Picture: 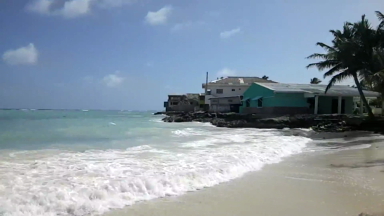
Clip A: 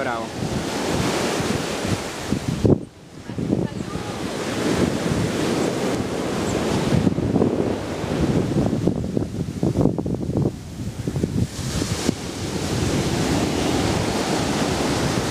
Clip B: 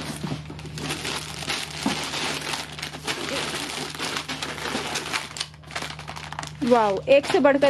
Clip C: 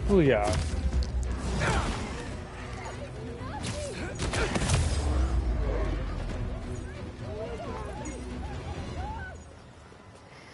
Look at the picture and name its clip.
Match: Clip A